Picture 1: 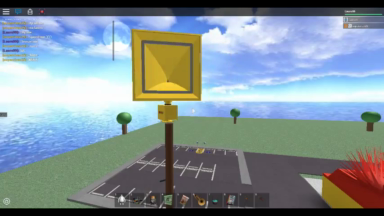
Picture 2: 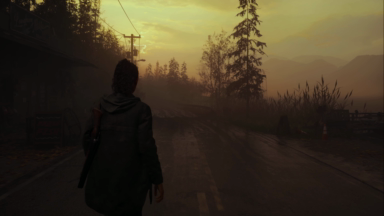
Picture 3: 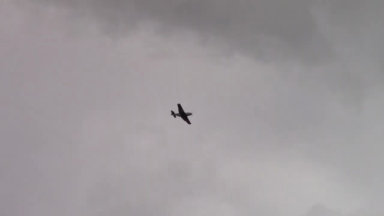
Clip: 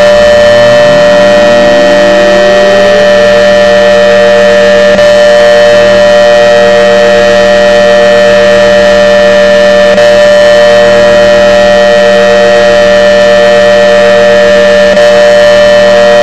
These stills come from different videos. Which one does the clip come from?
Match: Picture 1